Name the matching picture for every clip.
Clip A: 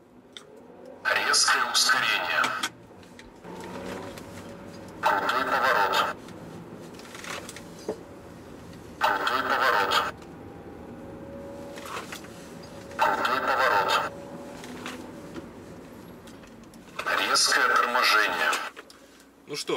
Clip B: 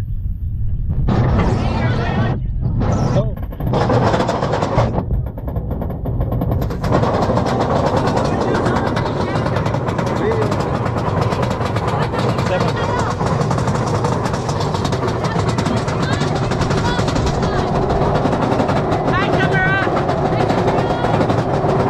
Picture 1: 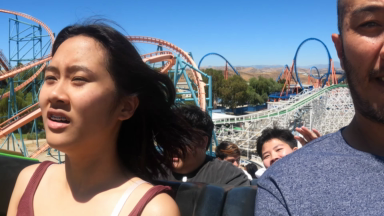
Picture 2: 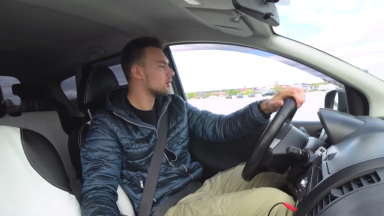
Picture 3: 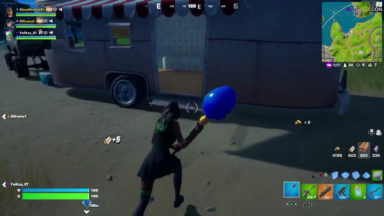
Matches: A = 2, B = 1